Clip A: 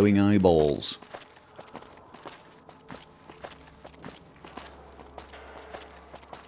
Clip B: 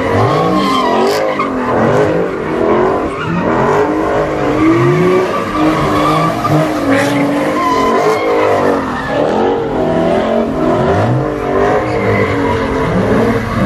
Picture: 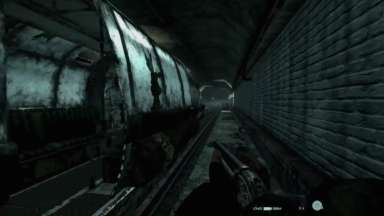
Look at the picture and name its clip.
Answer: A